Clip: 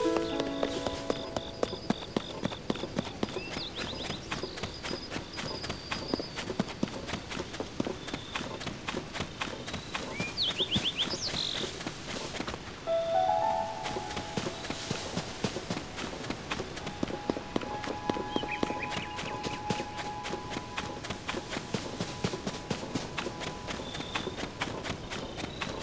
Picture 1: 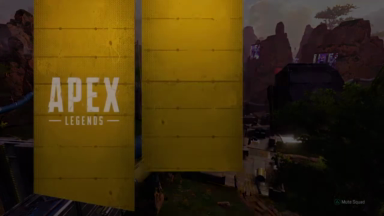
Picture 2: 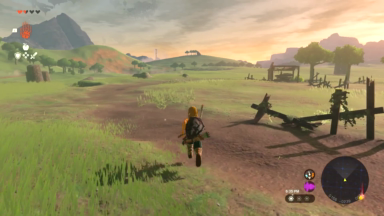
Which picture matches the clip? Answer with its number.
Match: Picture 2